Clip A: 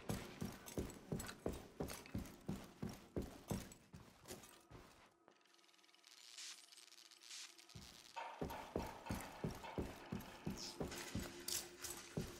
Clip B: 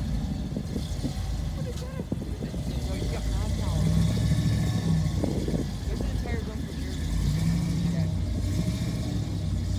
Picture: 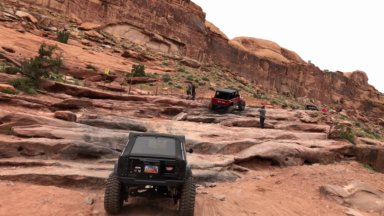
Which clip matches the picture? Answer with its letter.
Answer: B